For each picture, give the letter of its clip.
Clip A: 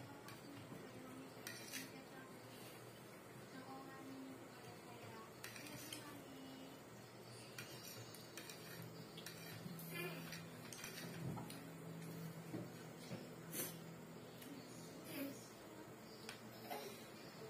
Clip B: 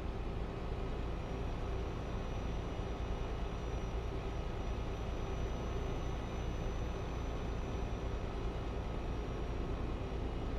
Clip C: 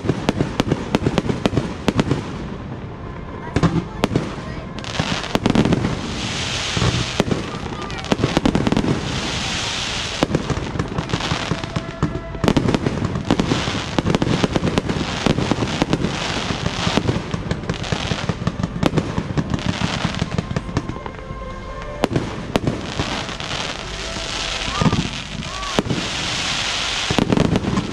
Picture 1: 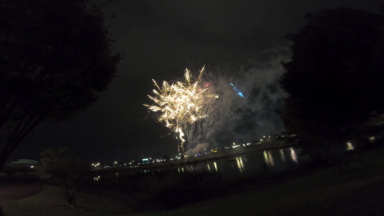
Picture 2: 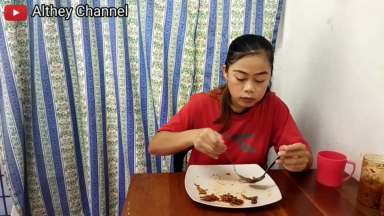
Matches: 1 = C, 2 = A